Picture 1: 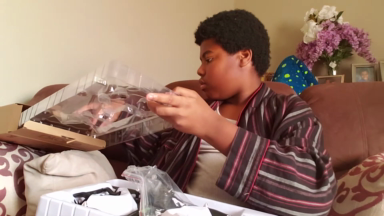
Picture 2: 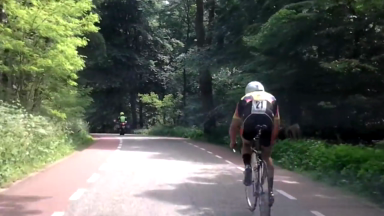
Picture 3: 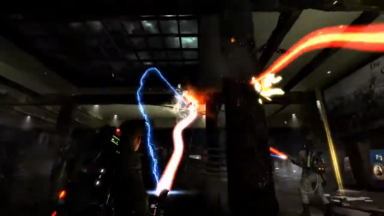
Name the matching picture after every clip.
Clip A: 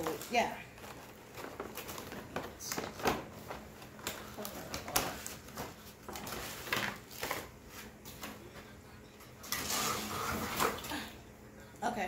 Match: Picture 1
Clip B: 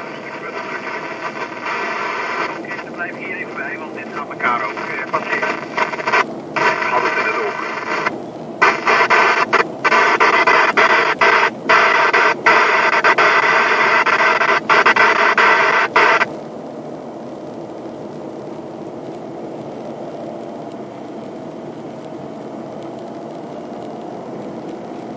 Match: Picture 2